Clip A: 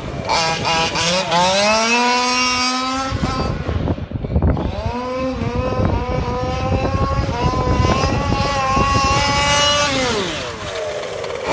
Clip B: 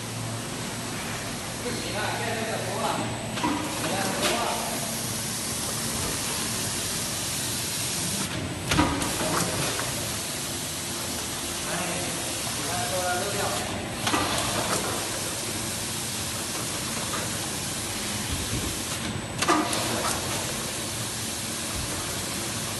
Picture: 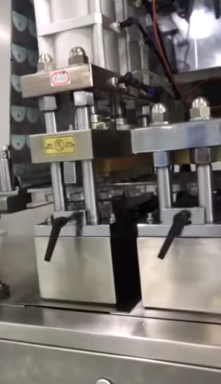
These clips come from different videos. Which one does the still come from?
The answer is B